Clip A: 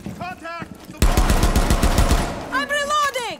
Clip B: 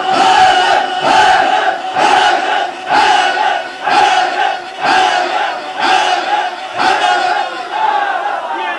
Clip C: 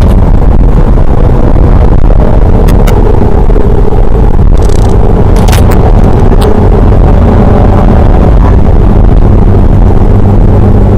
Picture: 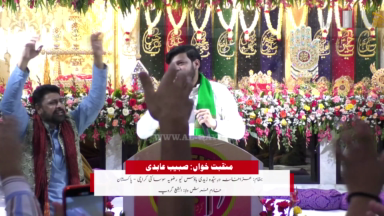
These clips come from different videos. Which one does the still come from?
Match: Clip B